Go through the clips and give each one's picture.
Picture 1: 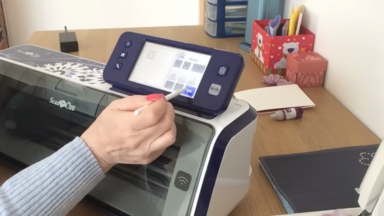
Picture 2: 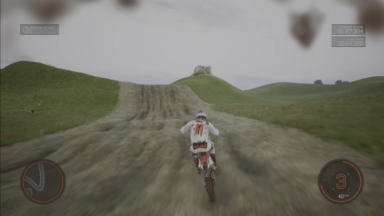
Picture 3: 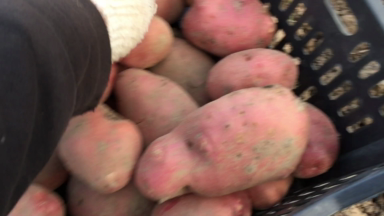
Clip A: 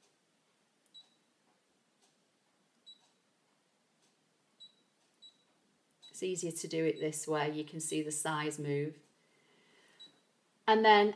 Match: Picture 1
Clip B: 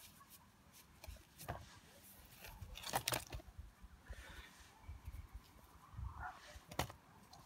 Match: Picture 3